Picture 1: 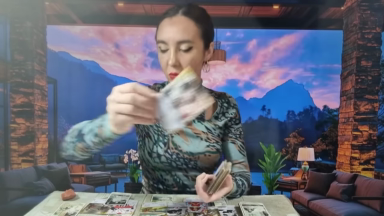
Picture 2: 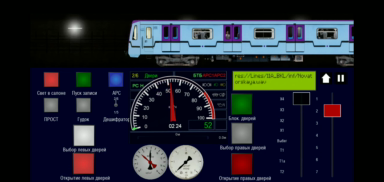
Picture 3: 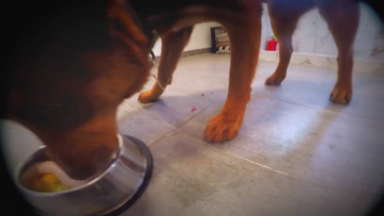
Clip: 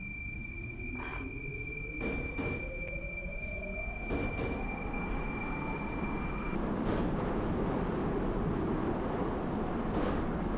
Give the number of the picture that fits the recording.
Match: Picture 2